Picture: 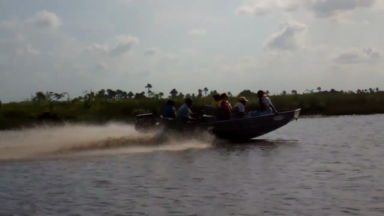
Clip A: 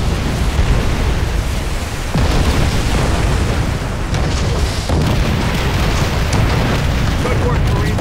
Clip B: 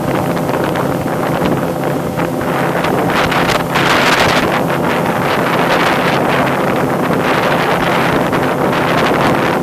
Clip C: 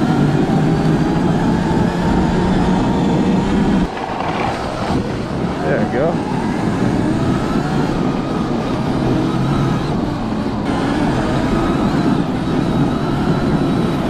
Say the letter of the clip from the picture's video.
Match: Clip B